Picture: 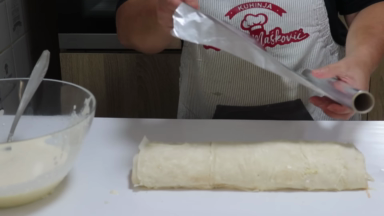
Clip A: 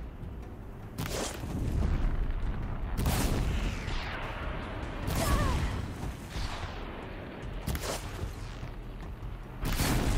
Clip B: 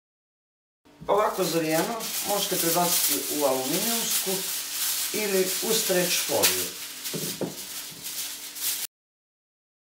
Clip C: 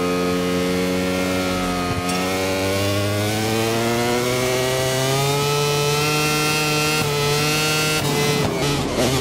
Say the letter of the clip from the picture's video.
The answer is B